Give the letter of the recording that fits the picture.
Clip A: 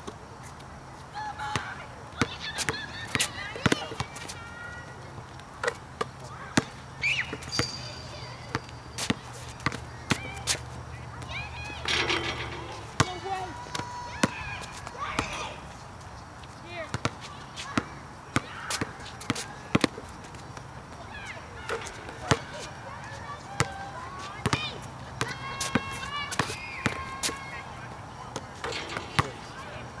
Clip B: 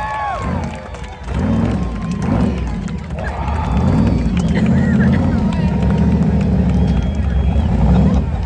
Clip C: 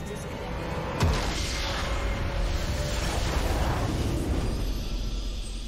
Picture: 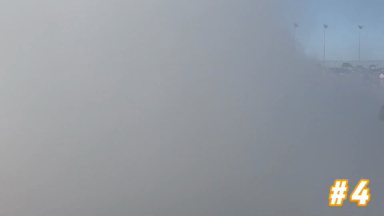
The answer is B